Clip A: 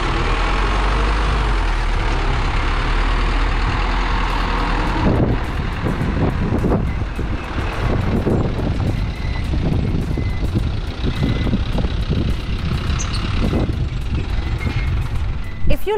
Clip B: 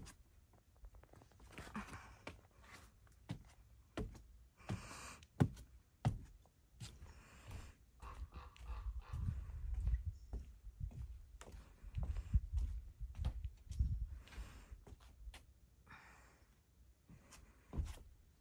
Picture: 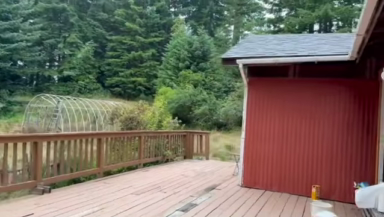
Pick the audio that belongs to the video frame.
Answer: B